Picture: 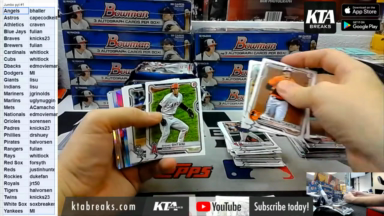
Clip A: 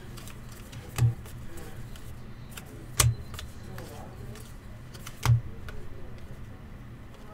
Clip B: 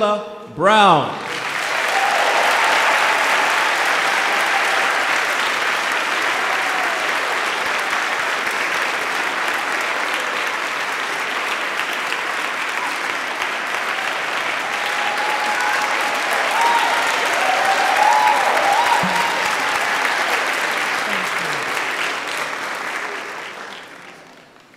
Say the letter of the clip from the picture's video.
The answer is A